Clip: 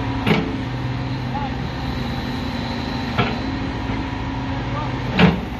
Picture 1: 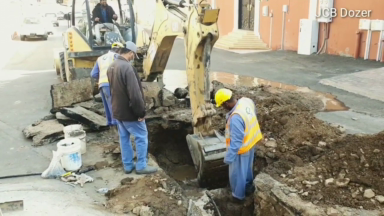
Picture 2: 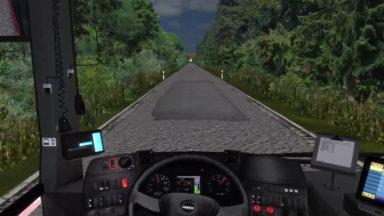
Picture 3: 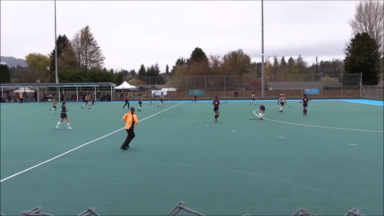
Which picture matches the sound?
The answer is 1